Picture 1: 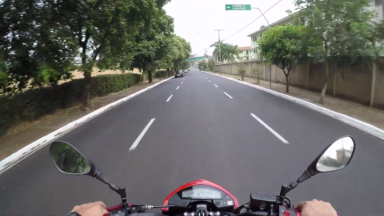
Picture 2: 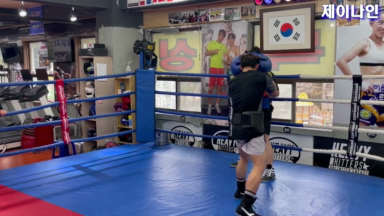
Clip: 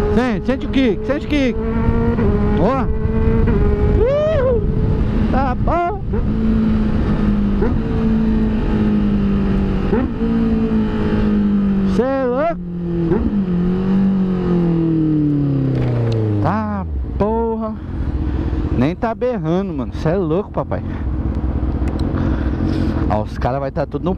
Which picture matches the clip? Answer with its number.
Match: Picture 1